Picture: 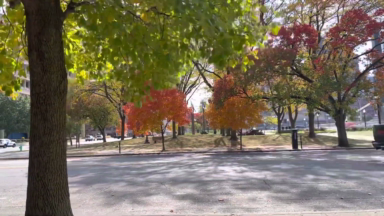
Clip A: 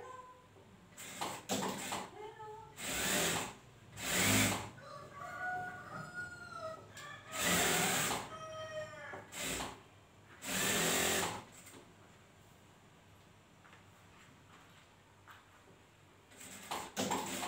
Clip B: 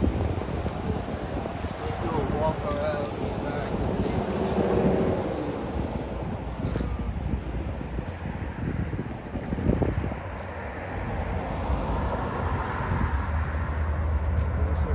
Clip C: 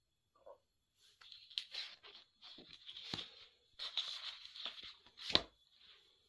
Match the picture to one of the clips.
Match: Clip B